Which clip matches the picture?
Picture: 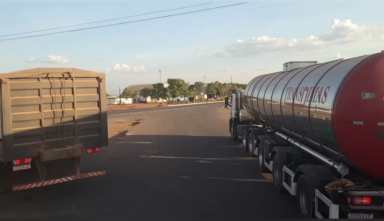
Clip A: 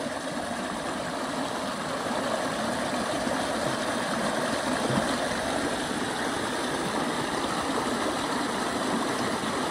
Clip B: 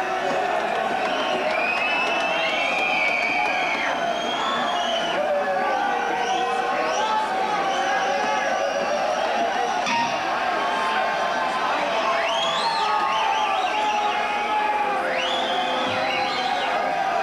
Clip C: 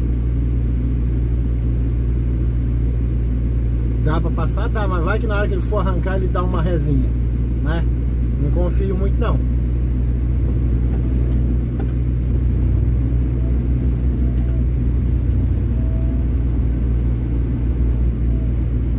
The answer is C